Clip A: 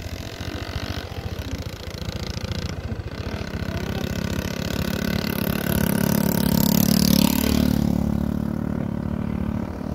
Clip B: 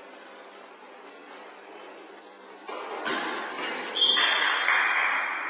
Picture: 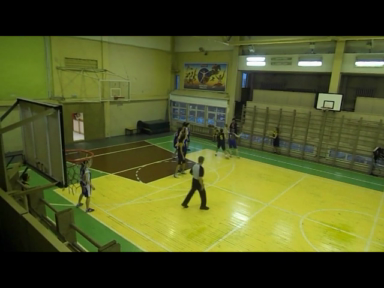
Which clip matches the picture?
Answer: B